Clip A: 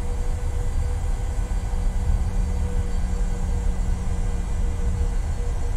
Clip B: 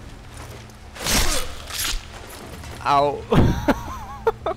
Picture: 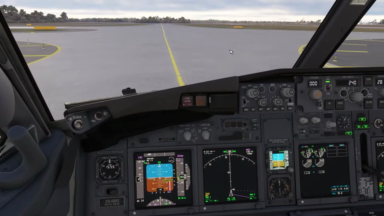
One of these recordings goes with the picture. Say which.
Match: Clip A